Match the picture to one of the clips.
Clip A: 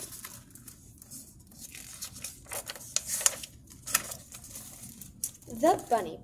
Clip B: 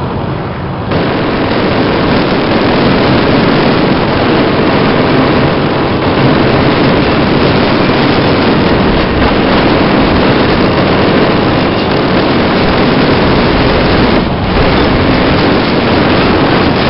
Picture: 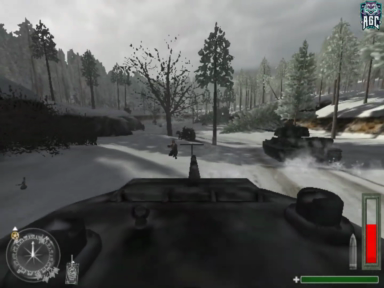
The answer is B